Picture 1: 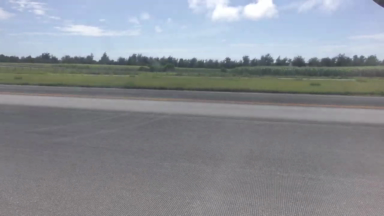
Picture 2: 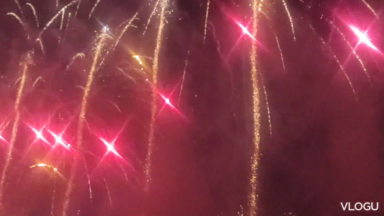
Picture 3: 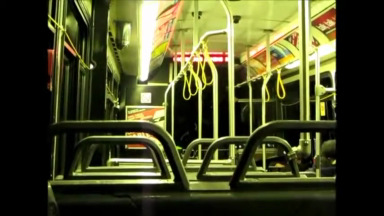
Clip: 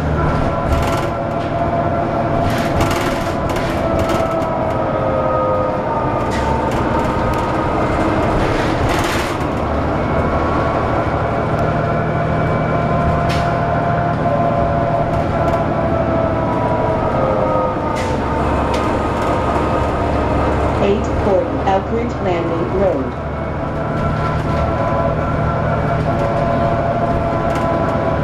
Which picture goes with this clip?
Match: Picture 3